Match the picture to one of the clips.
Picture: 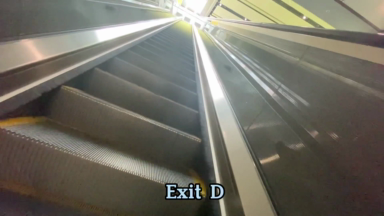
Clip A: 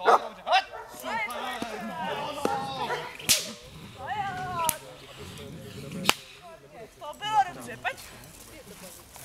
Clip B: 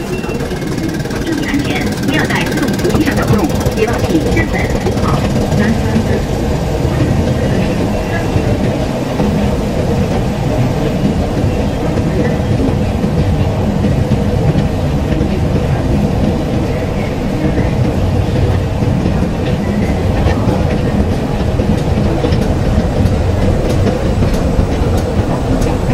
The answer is B